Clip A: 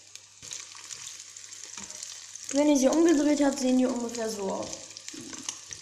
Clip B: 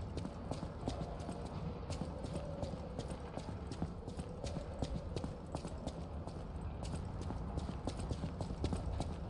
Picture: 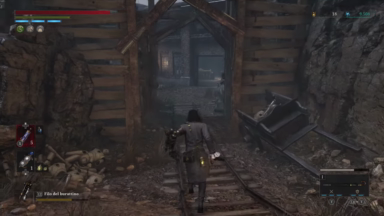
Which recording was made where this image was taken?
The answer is B